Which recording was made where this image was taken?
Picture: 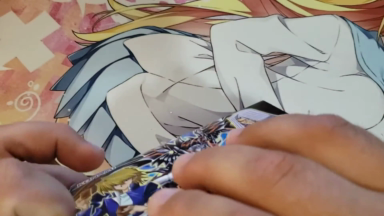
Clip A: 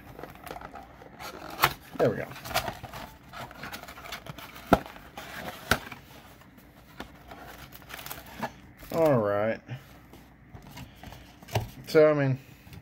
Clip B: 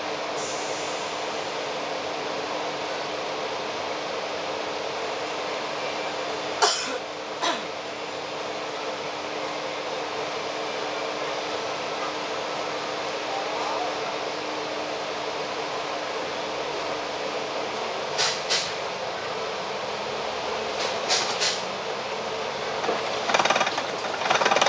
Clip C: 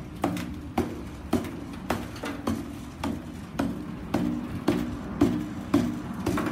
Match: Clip A